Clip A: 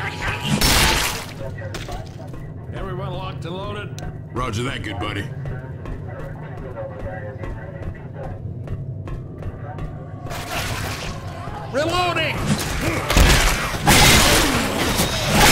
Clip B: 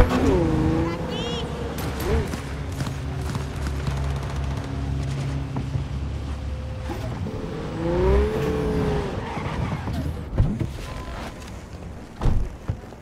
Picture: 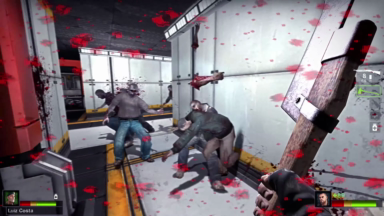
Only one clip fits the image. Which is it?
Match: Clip A